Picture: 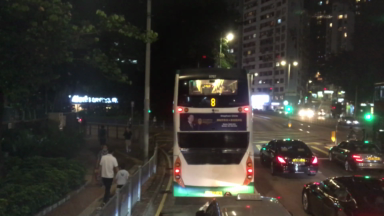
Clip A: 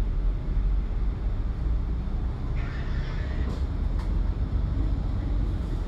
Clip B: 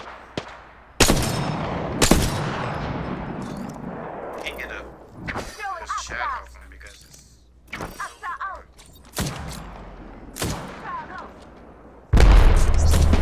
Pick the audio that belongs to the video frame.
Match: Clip A